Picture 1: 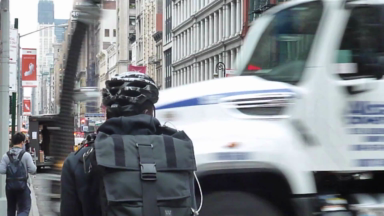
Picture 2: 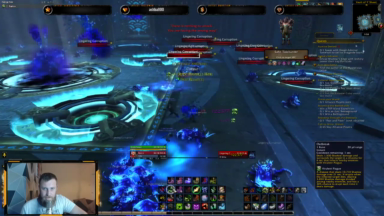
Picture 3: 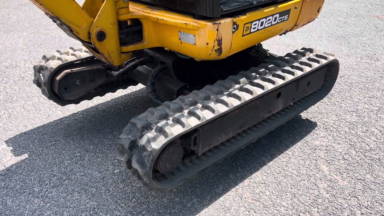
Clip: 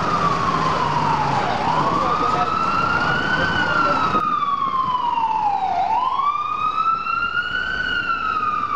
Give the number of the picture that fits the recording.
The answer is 1